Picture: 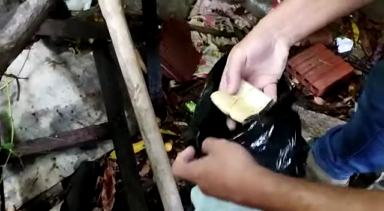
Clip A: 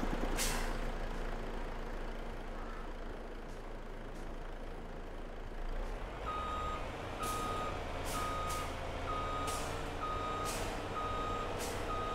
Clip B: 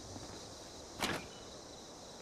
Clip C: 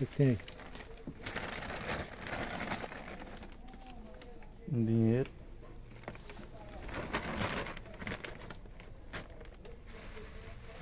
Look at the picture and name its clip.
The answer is C